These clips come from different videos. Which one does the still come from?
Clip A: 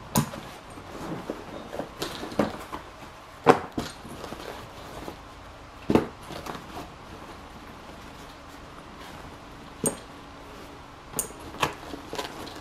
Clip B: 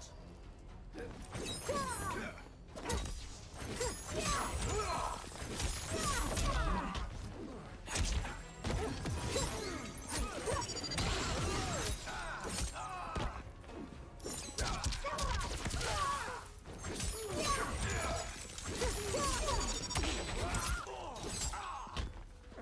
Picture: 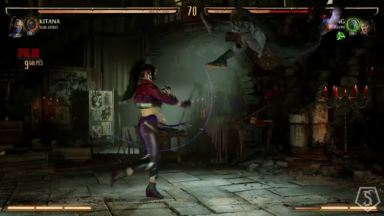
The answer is B